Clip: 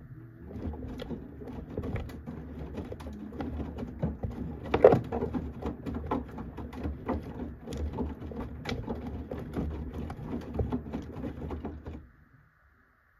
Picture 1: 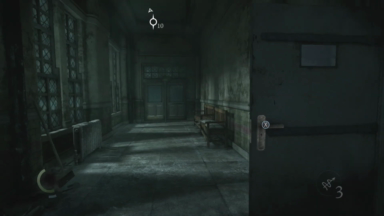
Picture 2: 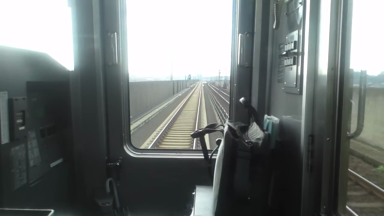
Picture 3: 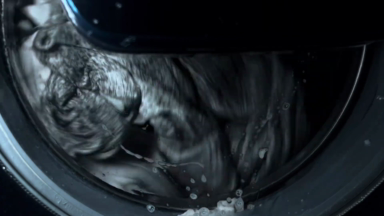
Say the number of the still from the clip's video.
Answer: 3